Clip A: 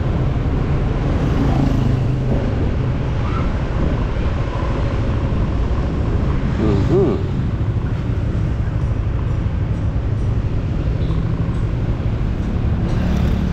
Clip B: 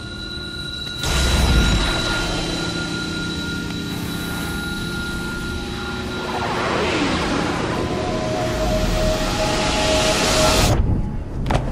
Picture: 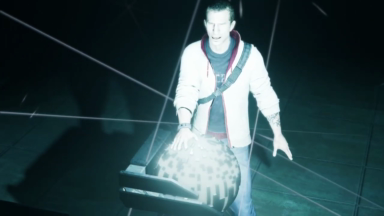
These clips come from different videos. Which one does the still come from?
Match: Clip B